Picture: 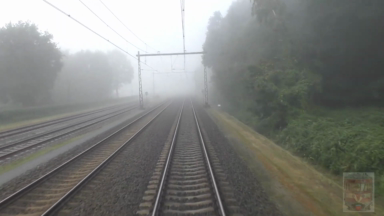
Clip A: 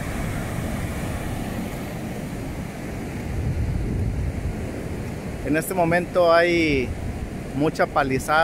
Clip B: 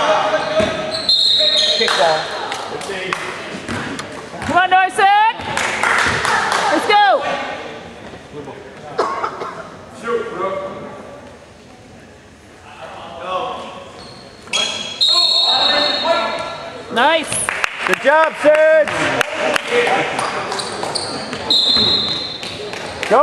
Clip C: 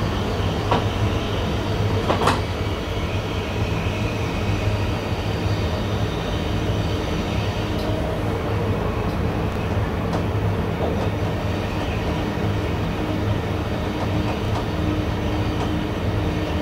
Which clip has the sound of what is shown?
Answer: C